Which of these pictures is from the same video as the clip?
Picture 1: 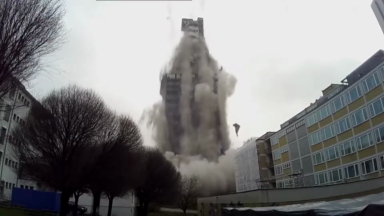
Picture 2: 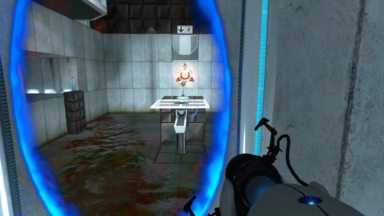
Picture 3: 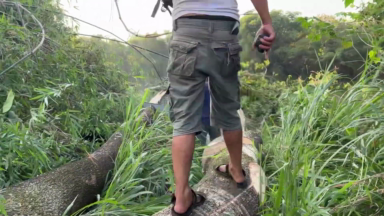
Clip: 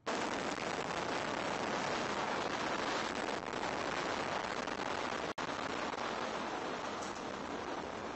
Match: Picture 1